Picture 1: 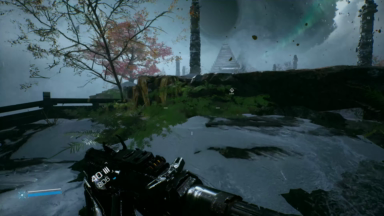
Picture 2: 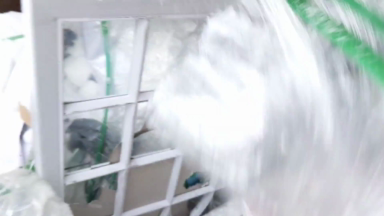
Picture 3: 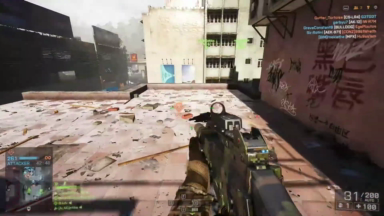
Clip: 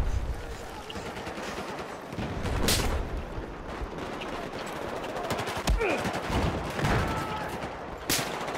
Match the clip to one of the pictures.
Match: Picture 3